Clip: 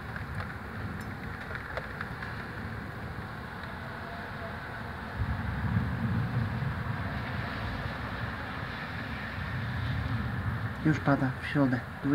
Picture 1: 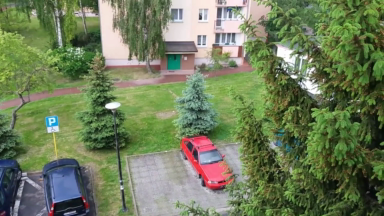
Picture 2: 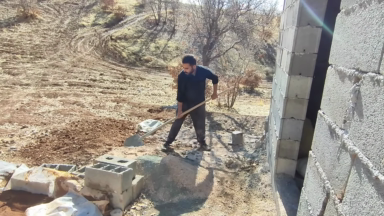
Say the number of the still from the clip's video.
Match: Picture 1